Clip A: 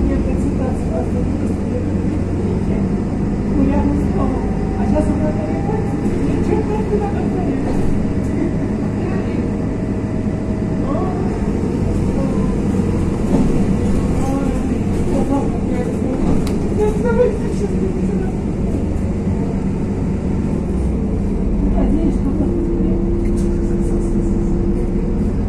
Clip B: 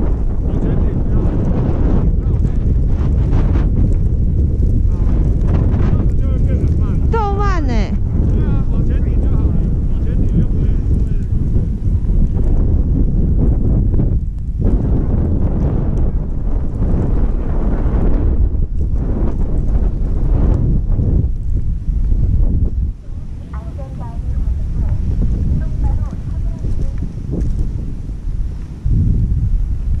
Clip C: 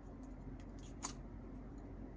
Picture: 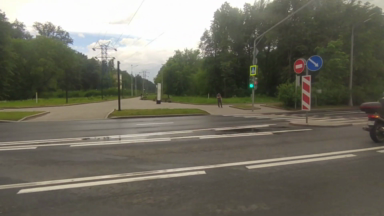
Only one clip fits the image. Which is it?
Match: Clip A